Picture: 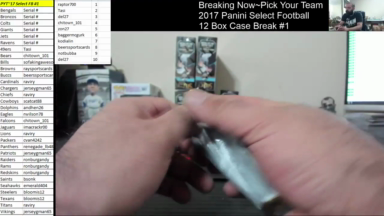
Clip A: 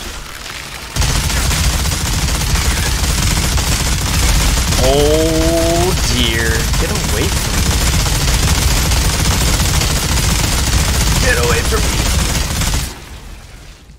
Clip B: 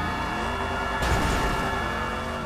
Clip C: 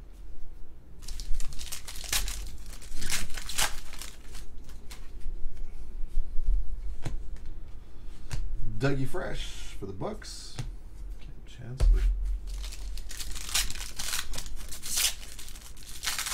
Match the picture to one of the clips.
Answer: C